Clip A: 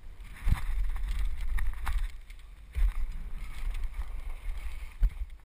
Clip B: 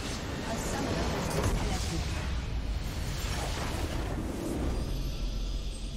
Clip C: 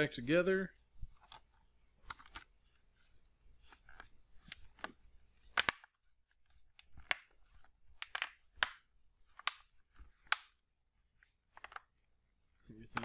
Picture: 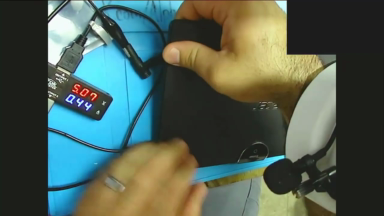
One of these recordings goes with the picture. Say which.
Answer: C